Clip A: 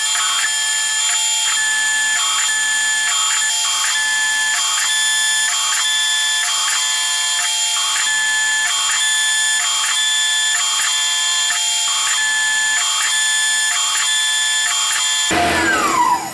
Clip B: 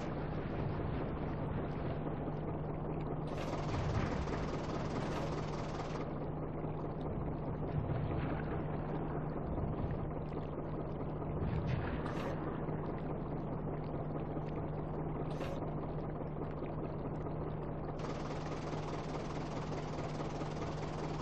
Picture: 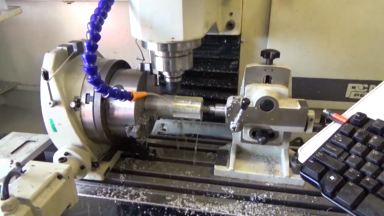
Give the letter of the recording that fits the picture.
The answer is A